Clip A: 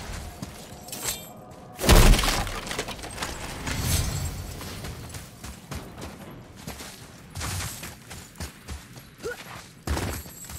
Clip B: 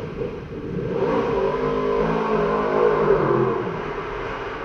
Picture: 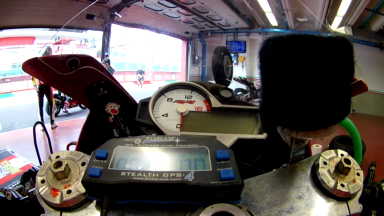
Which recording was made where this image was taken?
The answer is B